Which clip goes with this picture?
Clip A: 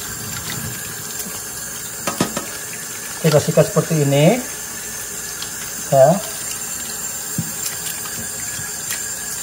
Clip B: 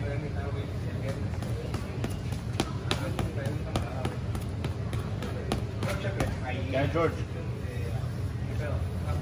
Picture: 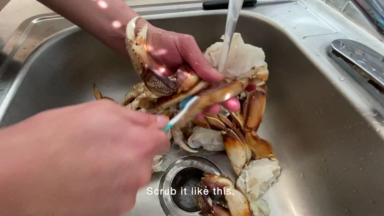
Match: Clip A